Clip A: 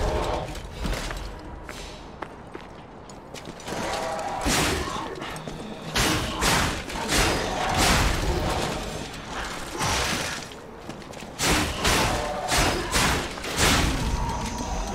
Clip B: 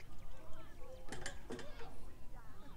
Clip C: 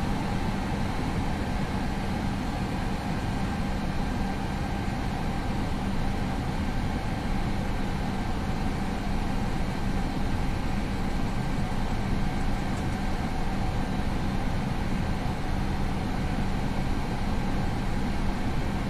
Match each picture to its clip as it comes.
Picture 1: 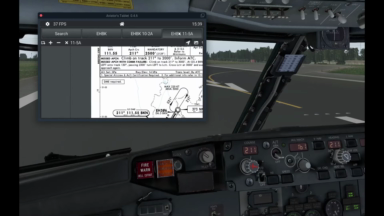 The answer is C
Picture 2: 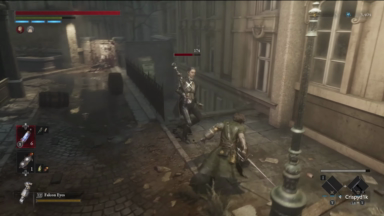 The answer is A